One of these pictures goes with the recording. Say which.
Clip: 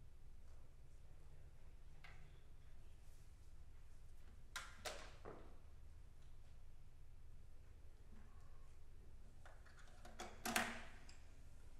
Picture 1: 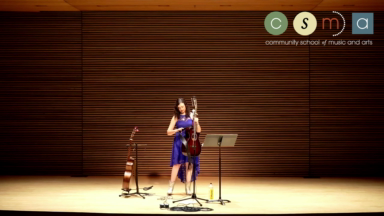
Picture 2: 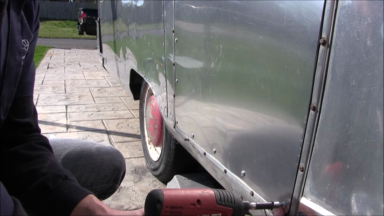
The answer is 1